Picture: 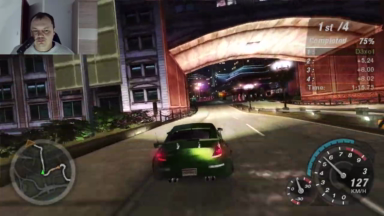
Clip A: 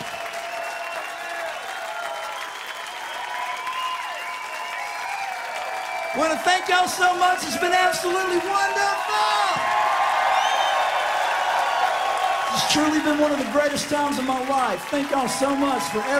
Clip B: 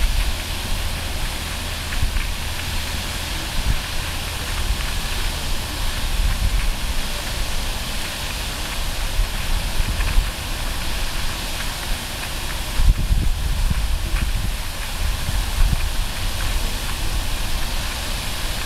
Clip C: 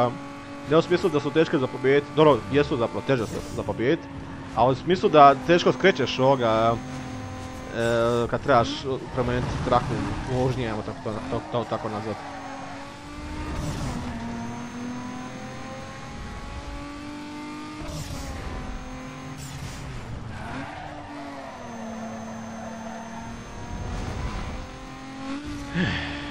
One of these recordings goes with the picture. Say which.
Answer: C